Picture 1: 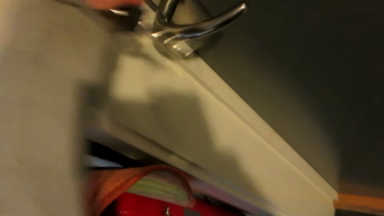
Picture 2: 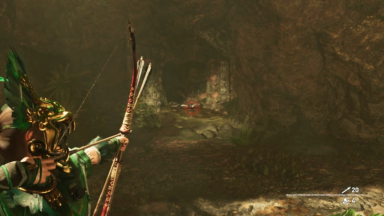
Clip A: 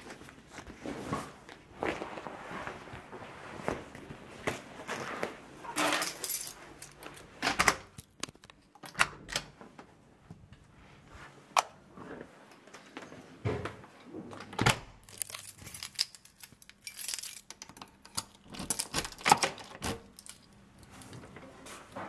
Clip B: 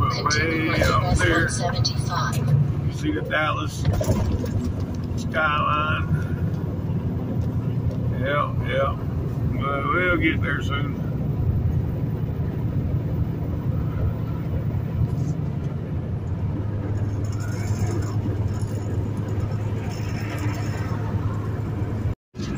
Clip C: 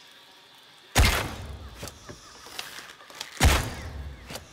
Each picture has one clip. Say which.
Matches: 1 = A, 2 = C